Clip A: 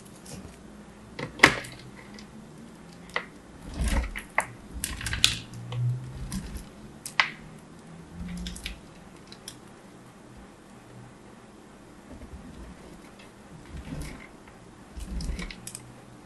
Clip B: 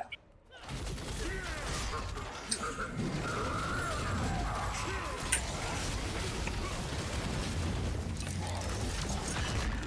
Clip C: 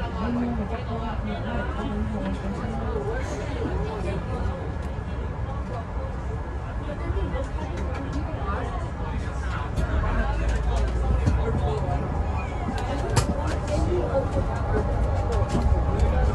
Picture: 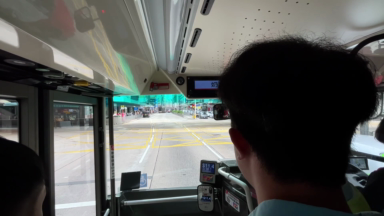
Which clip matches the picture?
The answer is C